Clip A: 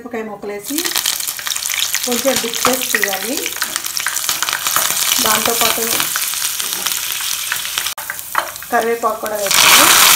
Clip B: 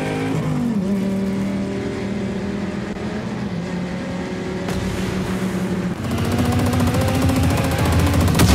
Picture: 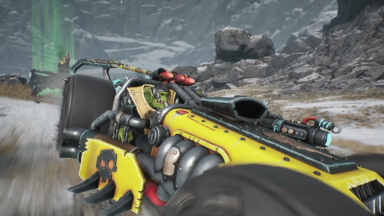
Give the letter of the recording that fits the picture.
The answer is B